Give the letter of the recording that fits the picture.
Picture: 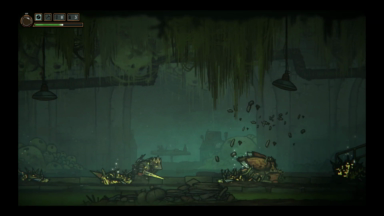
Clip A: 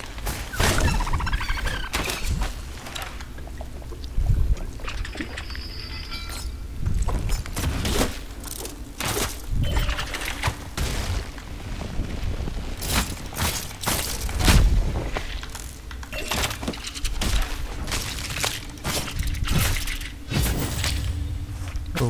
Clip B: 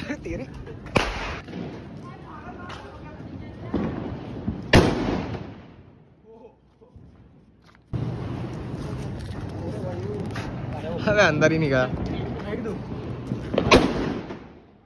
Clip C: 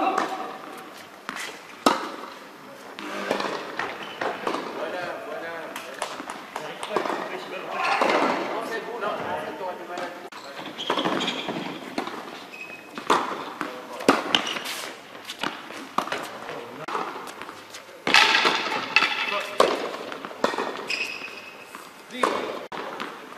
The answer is A